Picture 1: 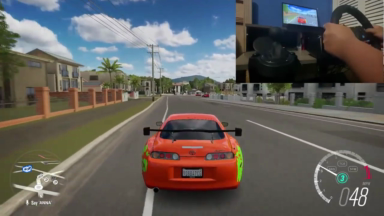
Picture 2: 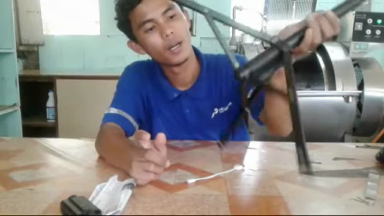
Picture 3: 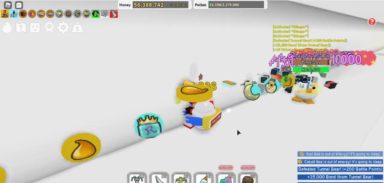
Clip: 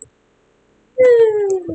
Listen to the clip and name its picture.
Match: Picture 3